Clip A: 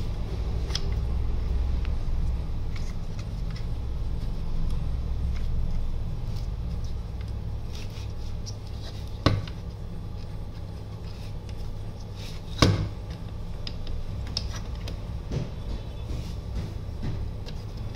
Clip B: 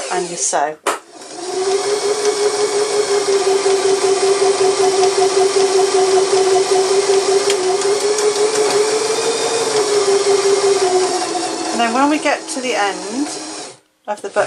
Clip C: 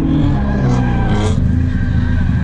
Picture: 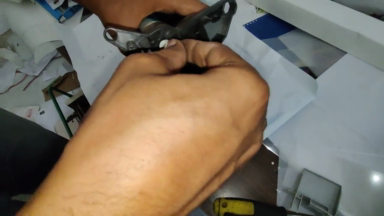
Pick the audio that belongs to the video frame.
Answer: A